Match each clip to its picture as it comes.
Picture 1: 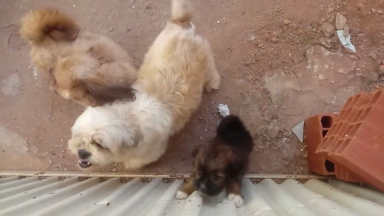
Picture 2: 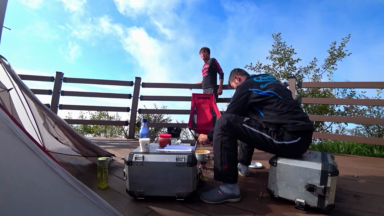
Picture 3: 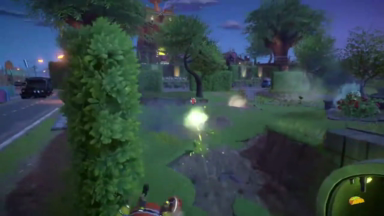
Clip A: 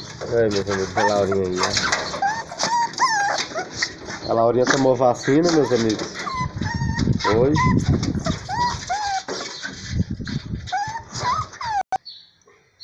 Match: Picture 1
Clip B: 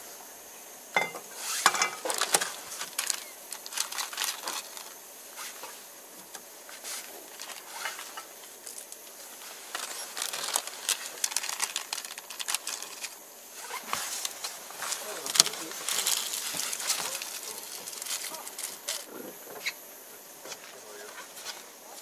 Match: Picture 2